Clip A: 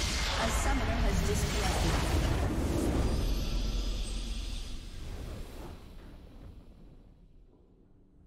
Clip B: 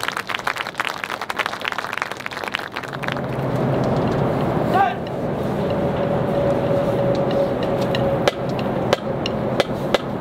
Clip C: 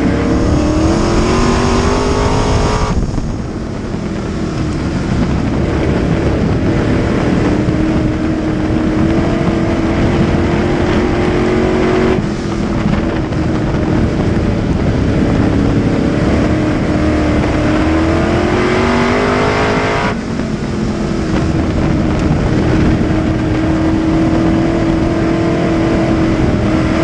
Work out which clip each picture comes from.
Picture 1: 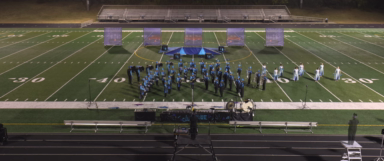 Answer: B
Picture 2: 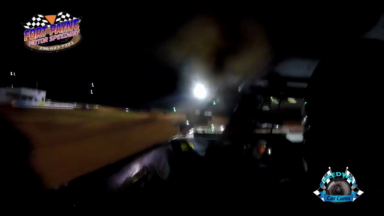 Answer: C